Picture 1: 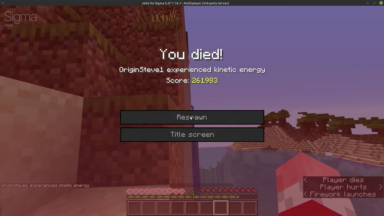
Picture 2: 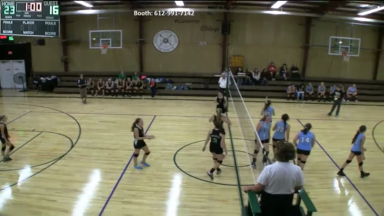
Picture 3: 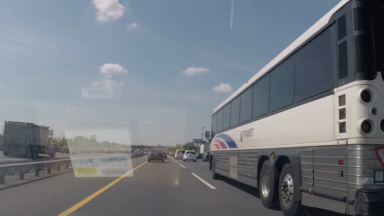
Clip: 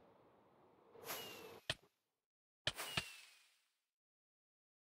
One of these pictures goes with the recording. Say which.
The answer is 1